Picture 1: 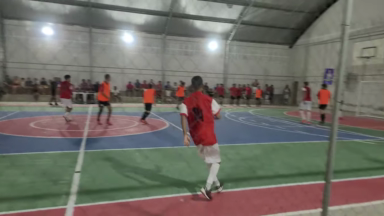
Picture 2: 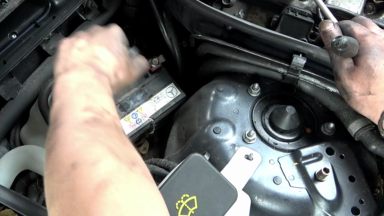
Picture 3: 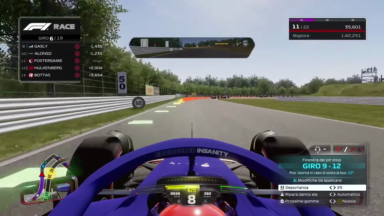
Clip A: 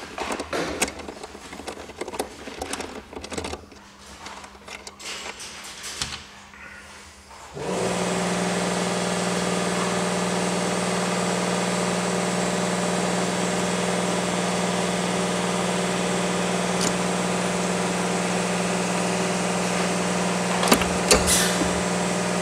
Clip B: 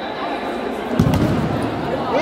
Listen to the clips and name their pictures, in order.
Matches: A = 2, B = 1